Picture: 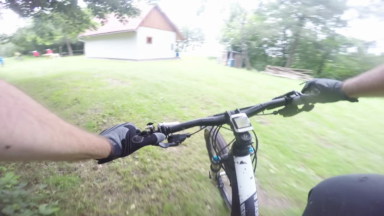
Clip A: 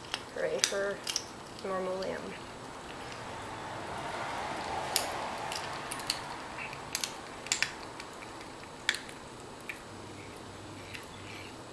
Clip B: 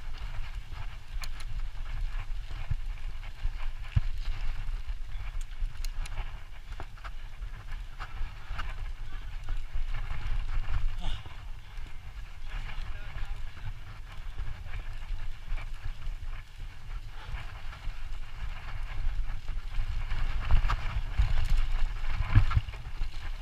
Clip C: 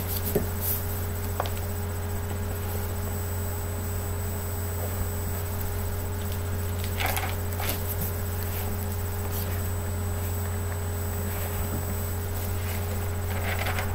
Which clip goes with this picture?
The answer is B